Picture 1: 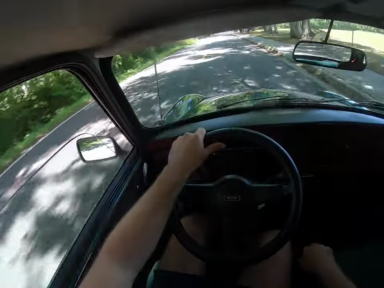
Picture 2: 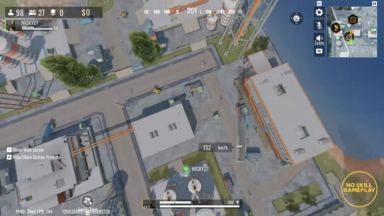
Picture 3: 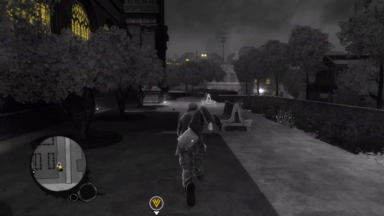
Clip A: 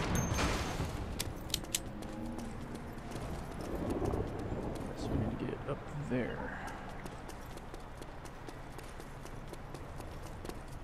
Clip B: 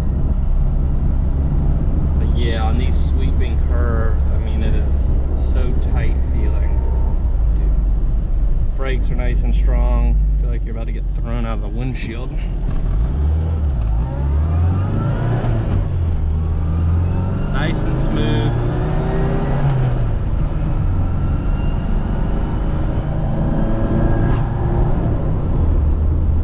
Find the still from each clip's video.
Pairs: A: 3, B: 1